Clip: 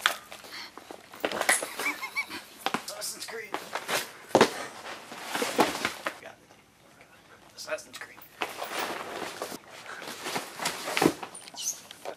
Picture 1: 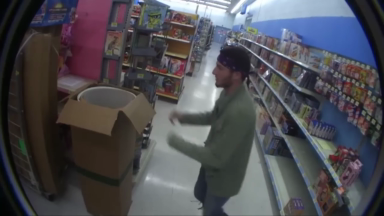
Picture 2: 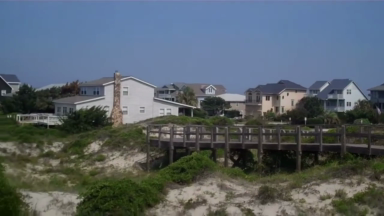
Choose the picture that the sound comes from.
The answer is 1